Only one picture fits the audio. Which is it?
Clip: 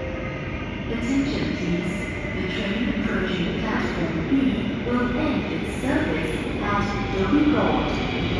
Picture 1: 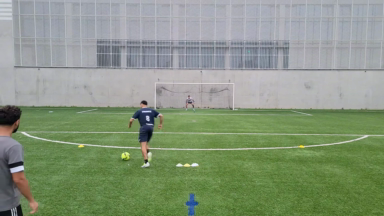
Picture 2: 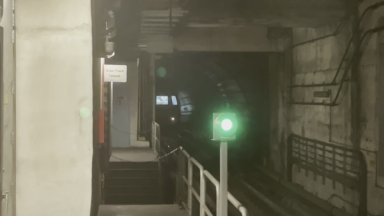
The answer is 2